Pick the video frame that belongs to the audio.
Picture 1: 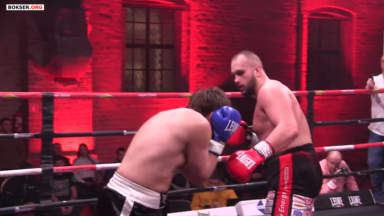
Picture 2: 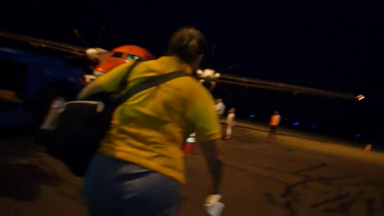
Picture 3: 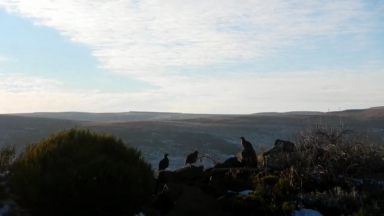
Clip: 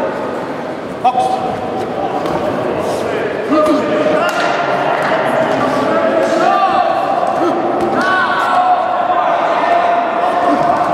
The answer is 1